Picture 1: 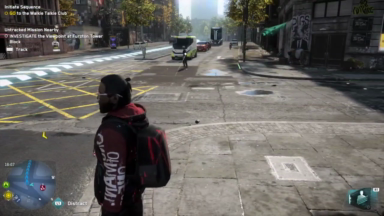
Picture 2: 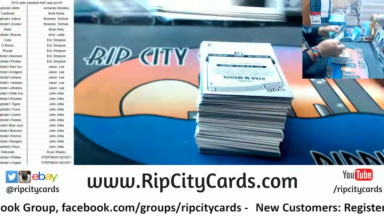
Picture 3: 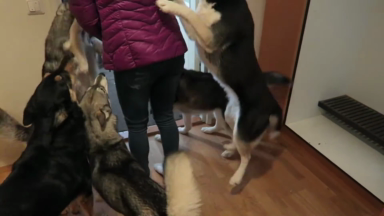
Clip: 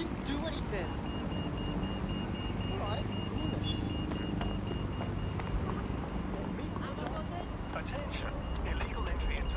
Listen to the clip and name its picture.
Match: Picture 1